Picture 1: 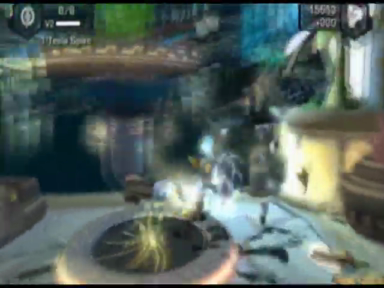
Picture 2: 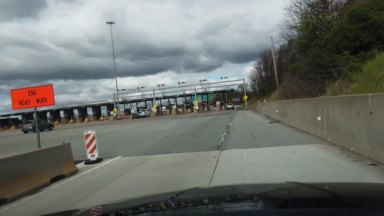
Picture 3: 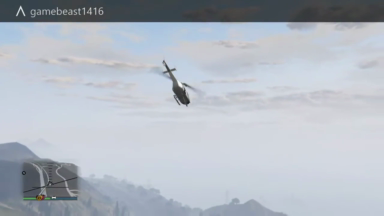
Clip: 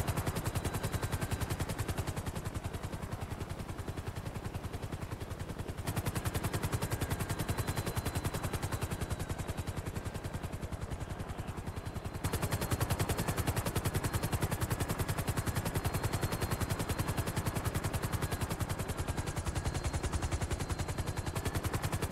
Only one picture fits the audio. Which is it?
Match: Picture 3